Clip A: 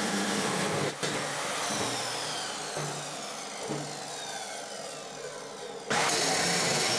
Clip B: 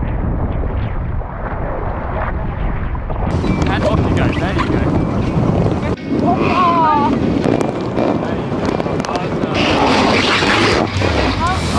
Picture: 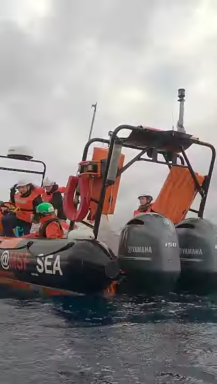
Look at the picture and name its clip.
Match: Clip B